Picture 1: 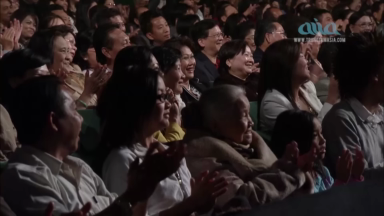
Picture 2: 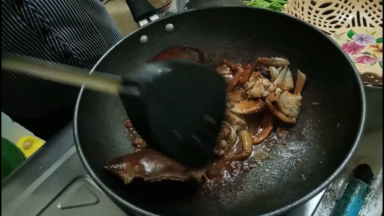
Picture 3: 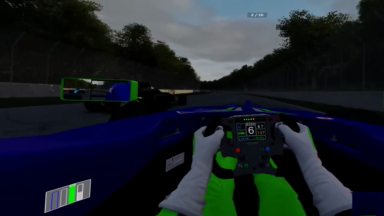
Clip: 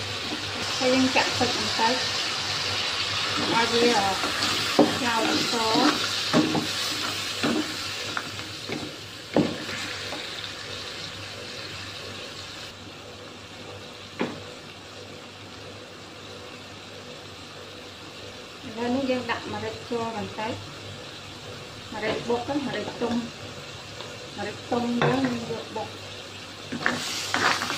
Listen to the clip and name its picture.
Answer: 2